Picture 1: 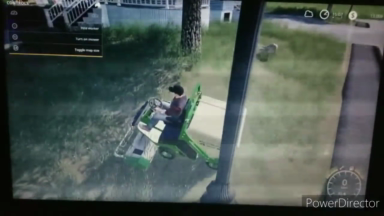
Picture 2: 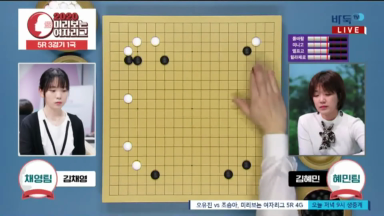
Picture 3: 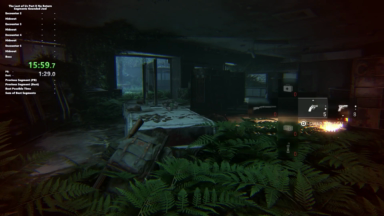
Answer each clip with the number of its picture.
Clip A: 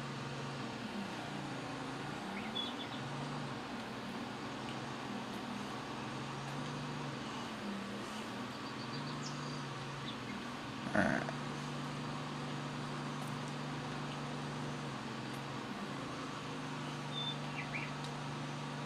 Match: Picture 1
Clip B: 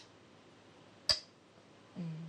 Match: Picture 2